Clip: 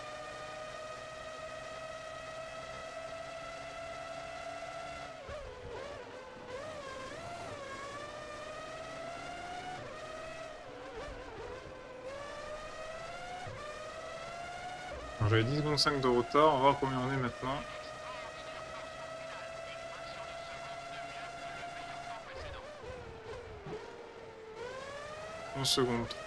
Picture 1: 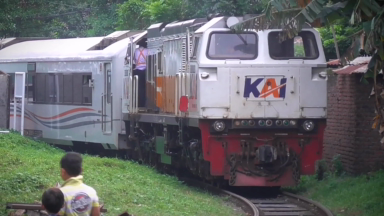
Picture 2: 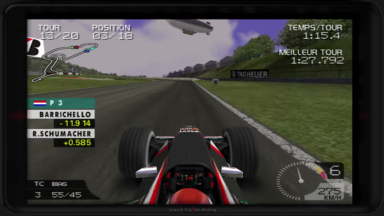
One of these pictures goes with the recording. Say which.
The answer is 2